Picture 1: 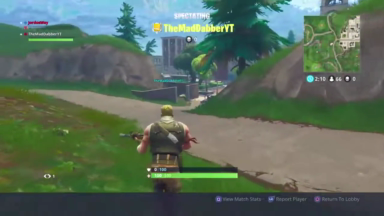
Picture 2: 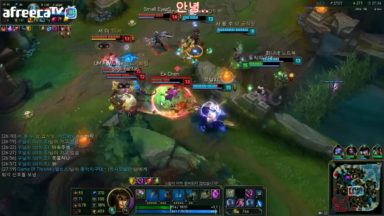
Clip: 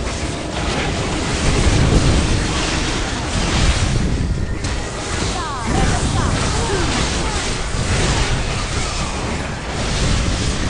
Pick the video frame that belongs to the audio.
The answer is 2